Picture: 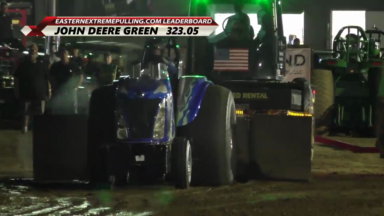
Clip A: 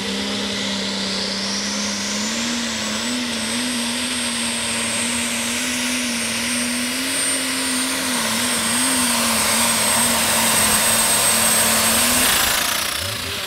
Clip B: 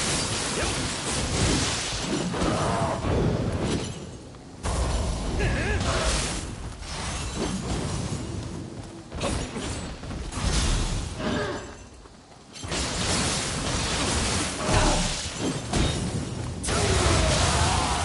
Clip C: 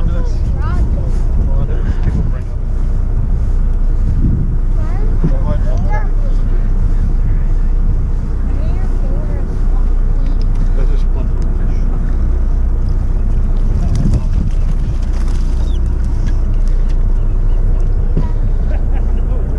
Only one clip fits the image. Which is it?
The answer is A